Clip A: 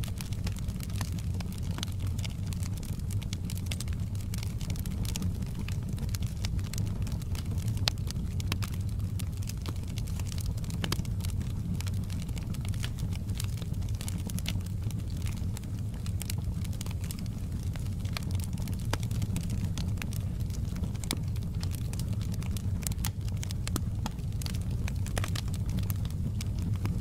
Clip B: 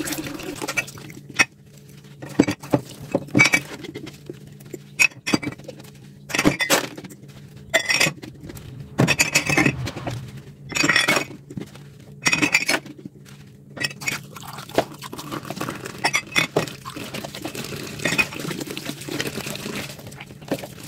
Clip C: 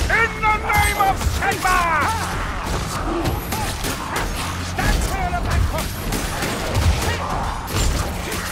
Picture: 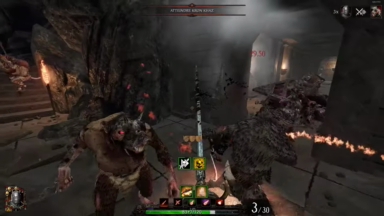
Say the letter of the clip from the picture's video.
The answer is C